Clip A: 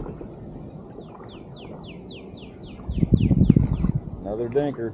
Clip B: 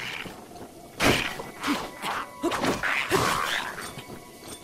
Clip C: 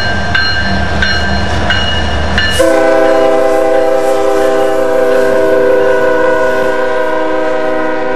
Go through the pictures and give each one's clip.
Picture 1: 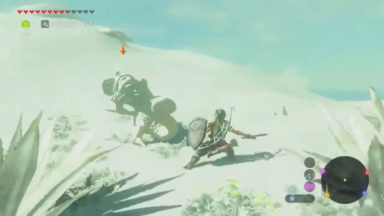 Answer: B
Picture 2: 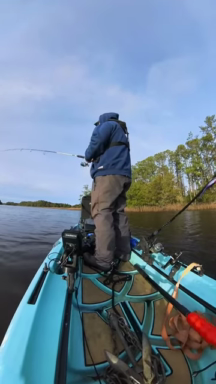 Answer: A